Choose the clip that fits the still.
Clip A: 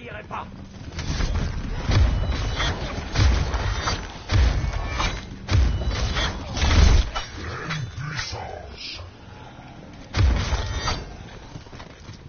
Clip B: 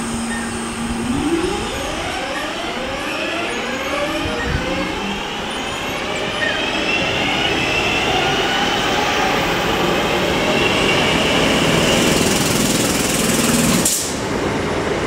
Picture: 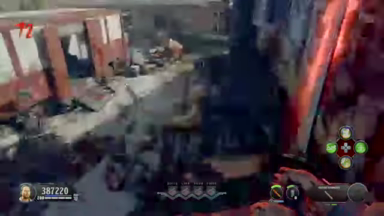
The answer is A